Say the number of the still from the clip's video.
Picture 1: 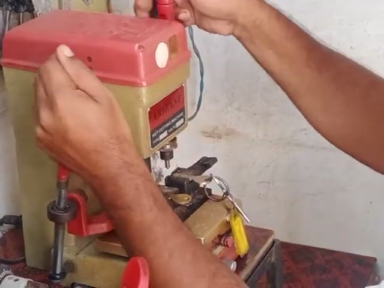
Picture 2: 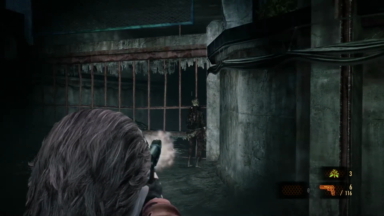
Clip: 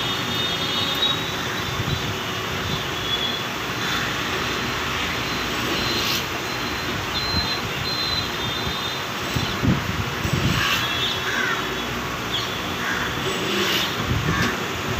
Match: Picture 1